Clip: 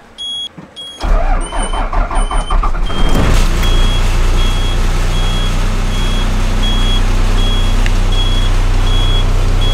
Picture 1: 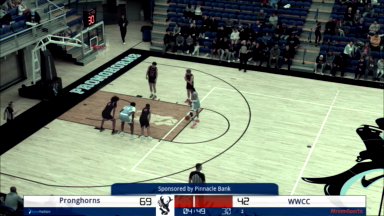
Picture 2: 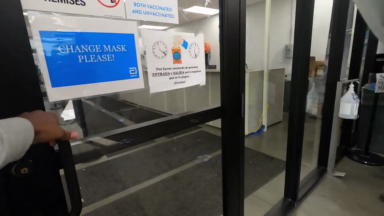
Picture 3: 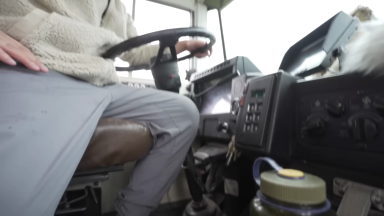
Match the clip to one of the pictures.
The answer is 3